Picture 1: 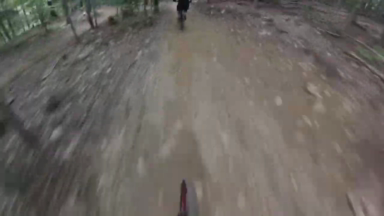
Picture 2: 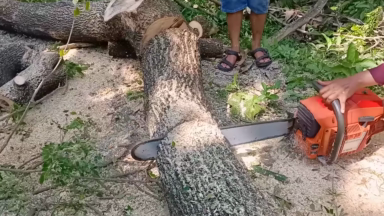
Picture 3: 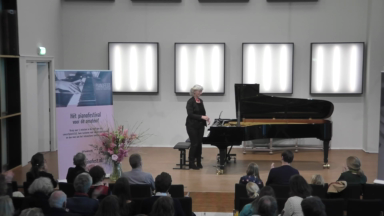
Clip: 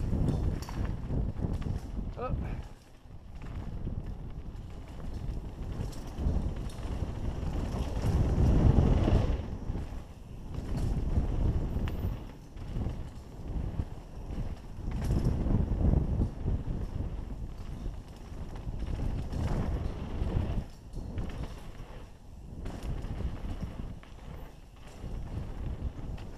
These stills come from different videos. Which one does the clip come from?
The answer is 1